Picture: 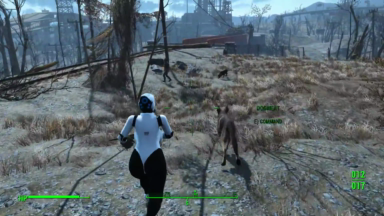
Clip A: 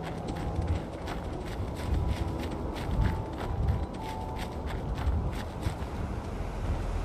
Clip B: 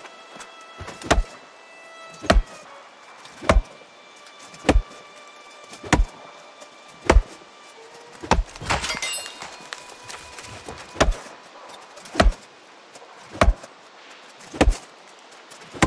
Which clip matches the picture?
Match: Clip A